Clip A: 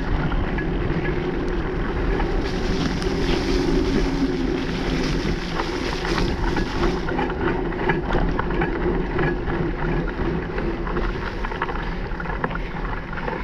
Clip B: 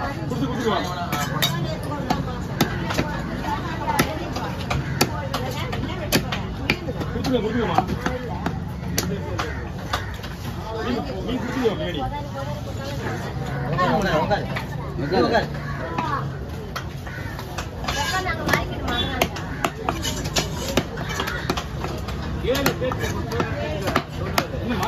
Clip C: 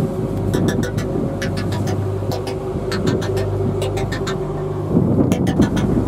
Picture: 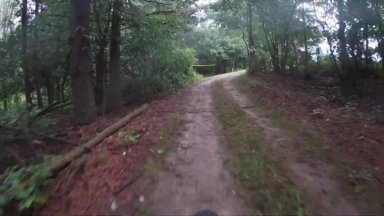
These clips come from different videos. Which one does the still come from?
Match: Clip A